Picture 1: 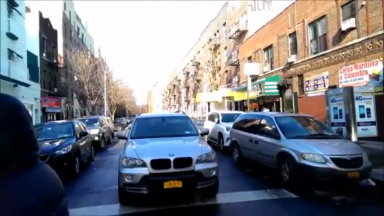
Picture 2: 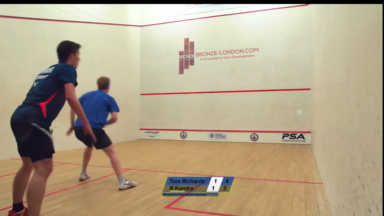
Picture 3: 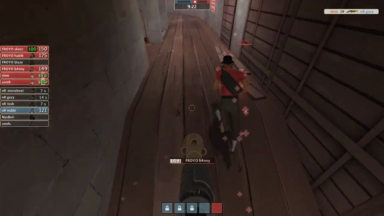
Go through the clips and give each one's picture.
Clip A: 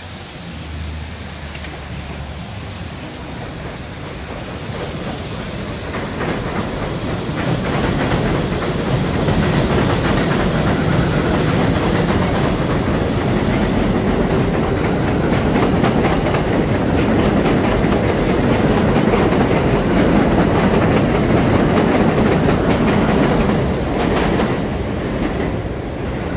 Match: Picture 1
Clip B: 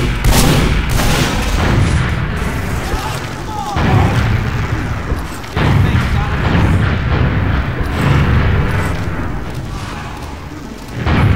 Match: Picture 3